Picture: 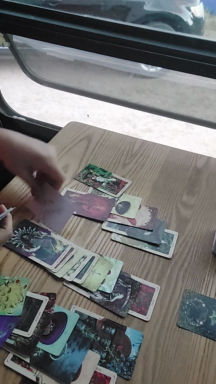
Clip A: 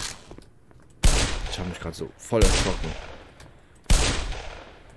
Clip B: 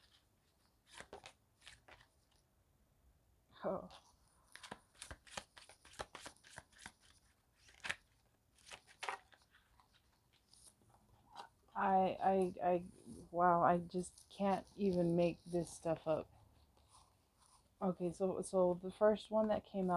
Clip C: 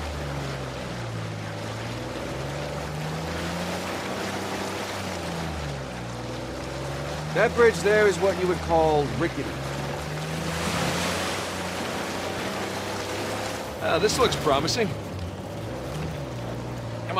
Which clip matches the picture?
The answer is B